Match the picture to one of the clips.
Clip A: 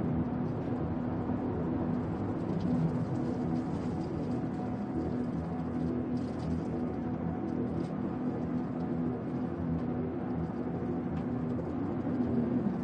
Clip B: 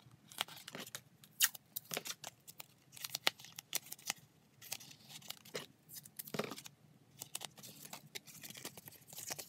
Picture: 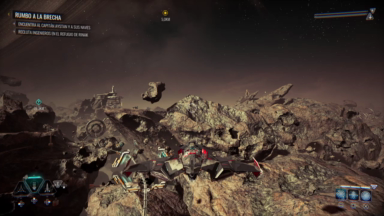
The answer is A